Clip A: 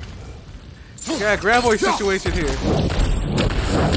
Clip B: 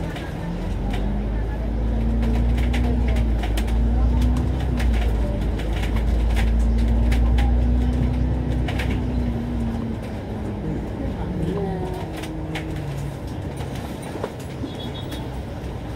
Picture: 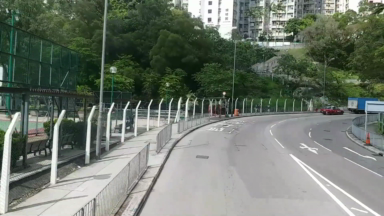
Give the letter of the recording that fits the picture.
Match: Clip B